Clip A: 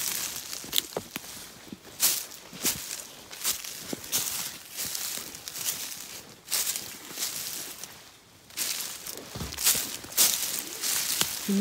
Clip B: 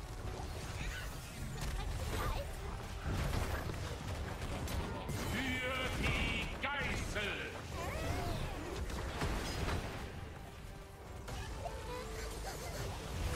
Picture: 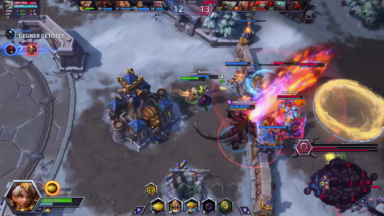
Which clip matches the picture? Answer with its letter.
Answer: B